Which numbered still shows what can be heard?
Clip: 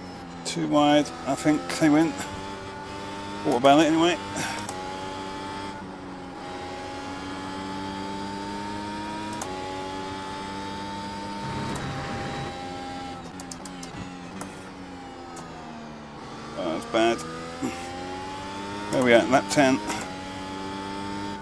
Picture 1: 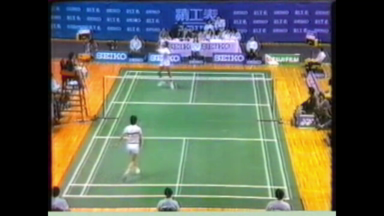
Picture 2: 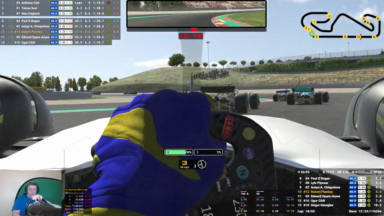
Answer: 2